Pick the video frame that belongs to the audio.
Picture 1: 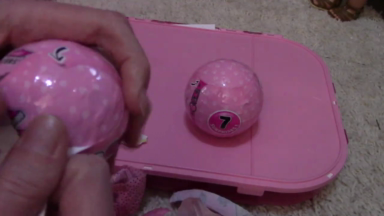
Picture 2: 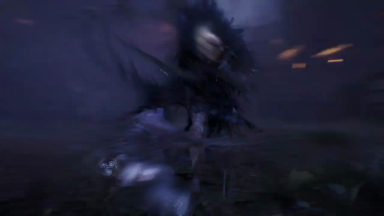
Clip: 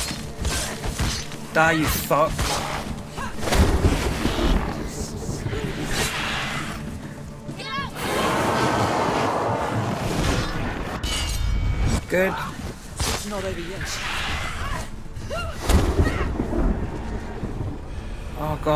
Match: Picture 2